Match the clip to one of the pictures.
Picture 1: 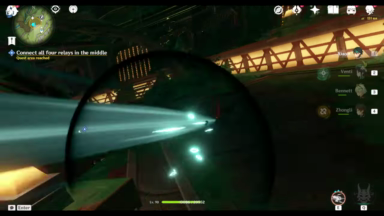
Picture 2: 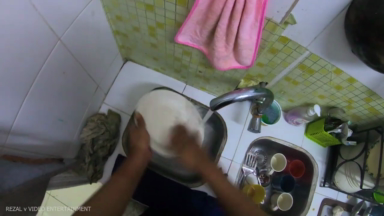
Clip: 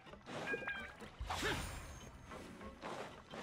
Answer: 1